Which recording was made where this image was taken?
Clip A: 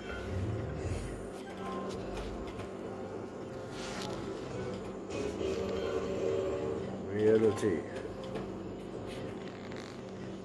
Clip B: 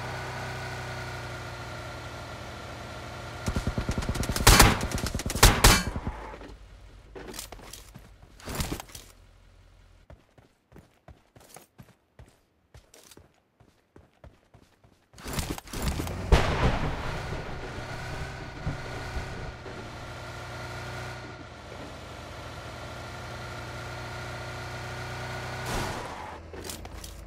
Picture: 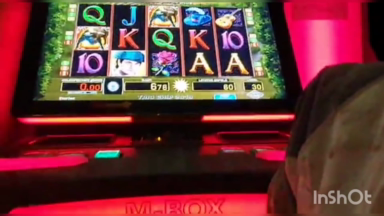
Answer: A